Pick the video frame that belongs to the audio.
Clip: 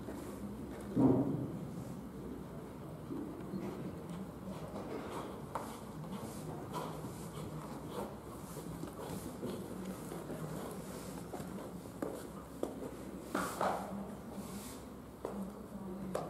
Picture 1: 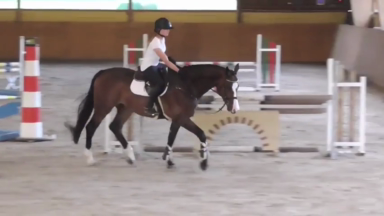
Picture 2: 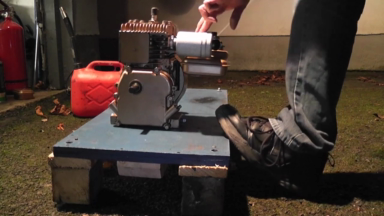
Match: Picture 1